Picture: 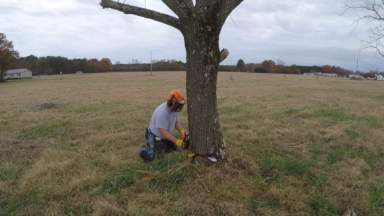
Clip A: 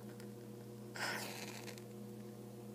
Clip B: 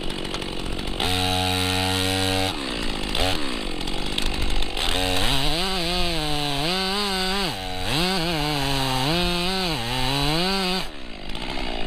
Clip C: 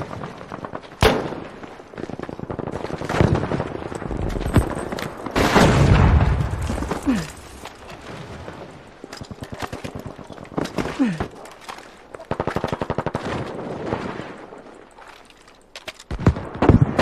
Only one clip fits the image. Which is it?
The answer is B